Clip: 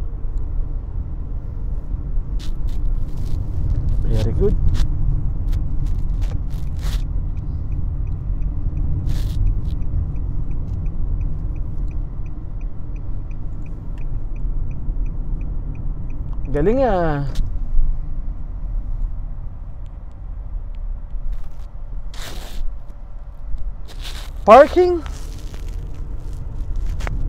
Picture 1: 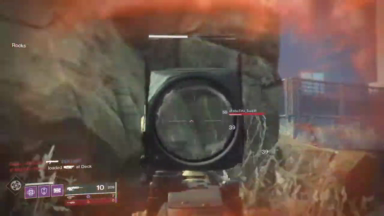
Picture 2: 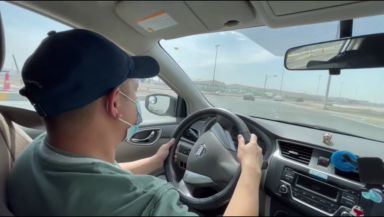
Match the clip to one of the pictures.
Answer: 2